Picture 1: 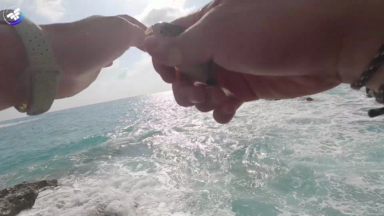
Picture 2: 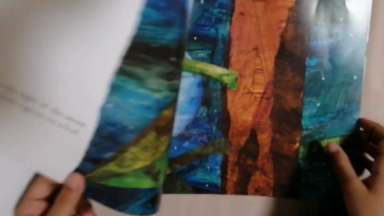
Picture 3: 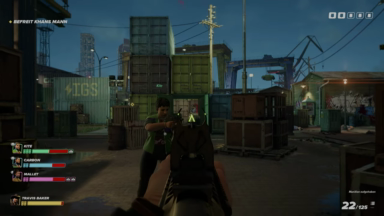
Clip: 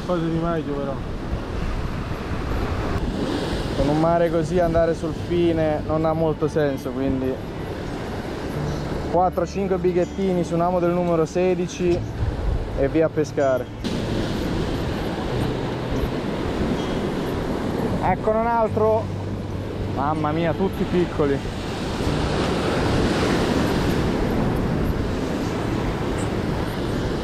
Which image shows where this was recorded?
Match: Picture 1